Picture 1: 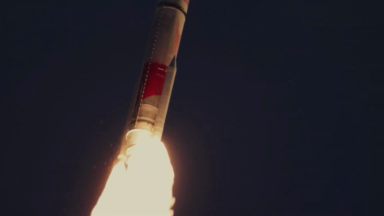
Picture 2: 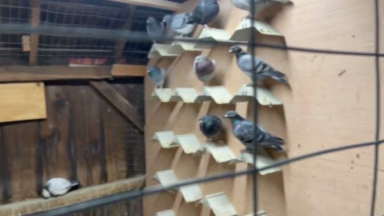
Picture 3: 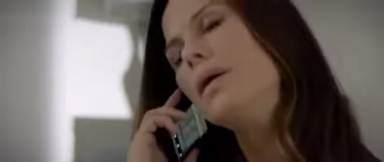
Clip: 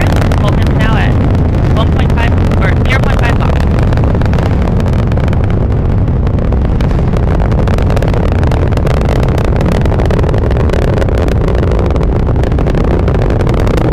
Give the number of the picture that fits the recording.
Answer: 1